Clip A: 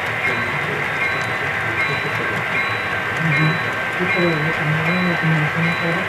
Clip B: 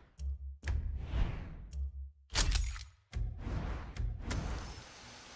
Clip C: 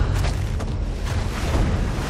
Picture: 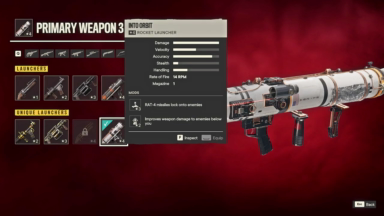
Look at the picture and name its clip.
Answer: B